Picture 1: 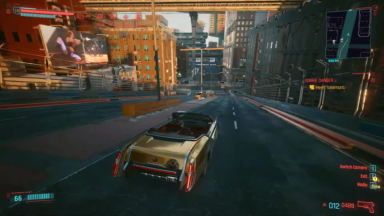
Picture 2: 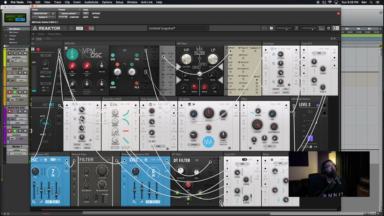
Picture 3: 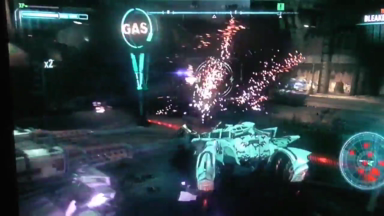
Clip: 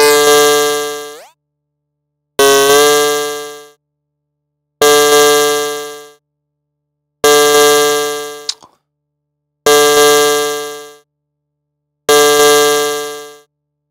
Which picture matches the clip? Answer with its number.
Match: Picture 2